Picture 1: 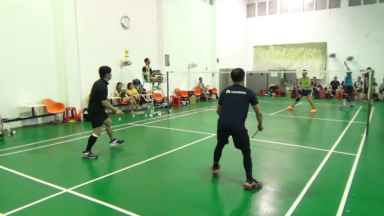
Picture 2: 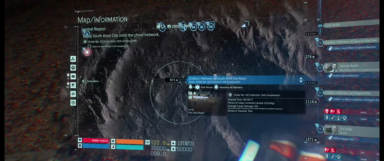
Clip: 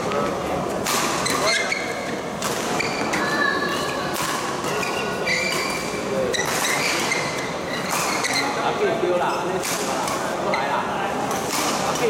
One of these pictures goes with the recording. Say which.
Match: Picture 1